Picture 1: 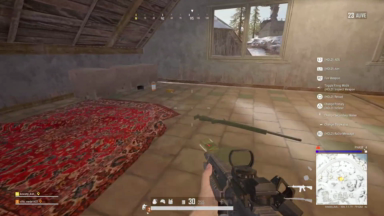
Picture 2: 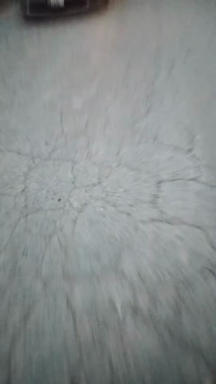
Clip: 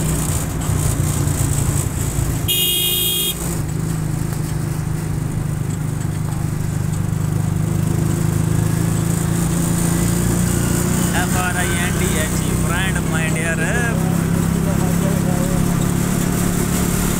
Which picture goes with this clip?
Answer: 2